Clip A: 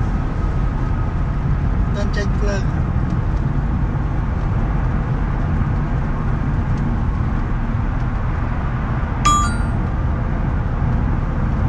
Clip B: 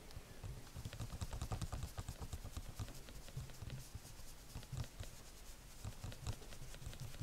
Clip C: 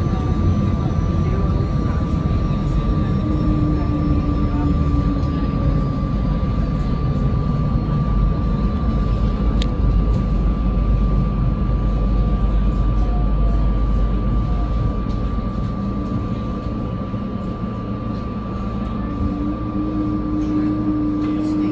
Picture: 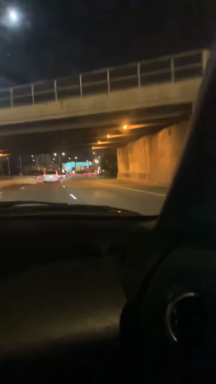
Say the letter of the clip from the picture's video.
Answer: A